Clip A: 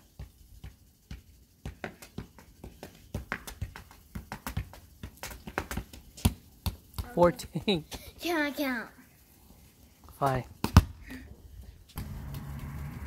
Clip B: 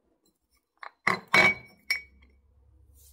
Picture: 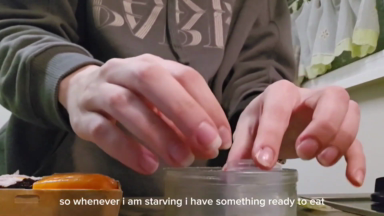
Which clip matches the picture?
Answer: B